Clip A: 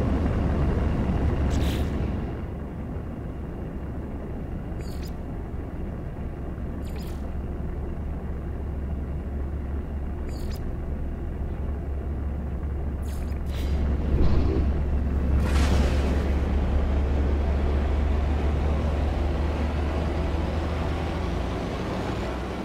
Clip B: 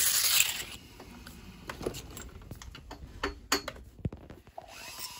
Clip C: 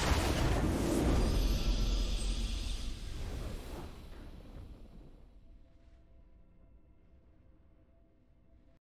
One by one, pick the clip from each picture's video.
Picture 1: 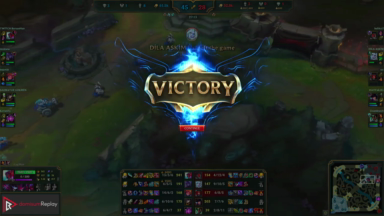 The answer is C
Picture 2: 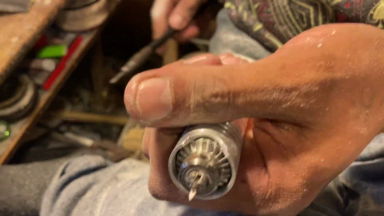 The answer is B